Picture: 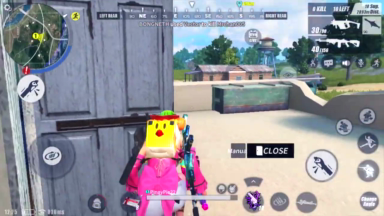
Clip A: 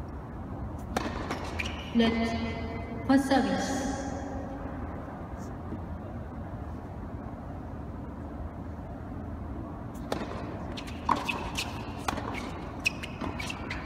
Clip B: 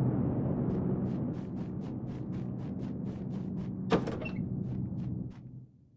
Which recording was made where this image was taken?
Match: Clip B